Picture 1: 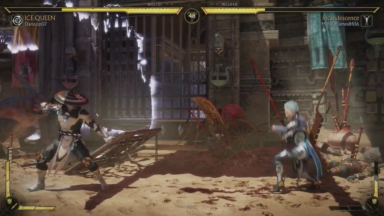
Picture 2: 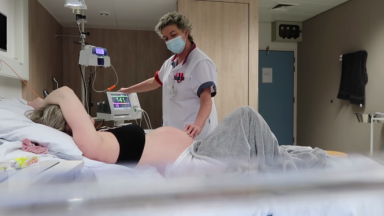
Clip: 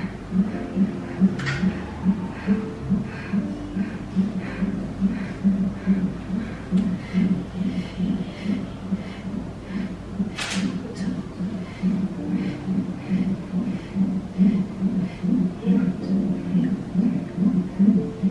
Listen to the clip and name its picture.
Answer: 2